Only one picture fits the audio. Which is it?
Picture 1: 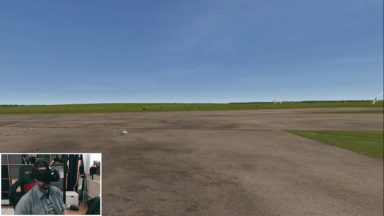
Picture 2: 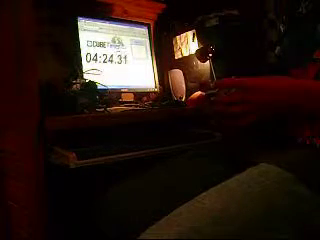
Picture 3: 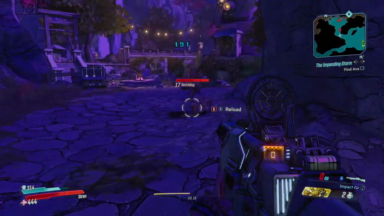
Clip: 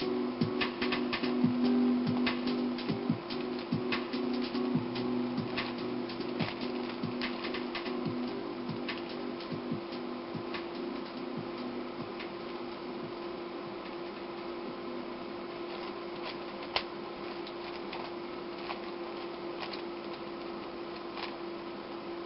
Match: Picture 2